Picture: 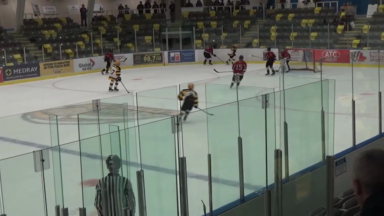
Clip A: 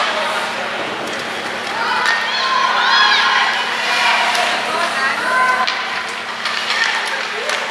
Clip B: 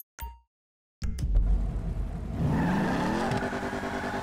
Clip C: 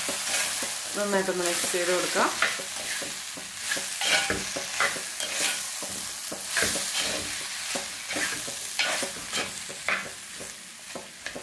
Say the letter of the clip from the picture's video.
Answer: A